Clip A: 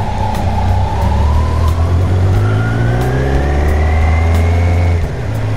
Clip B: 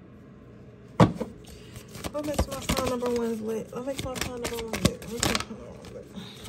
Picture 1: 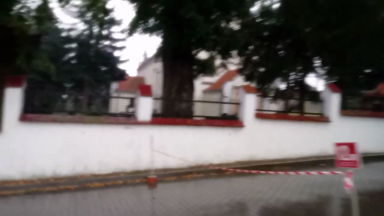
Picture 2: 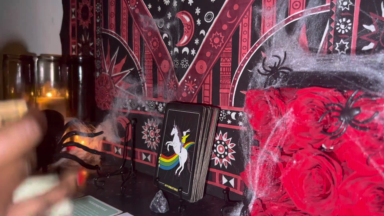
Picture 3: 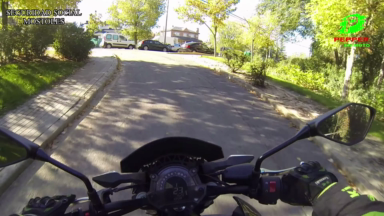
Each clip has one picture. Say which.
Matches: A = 3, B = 2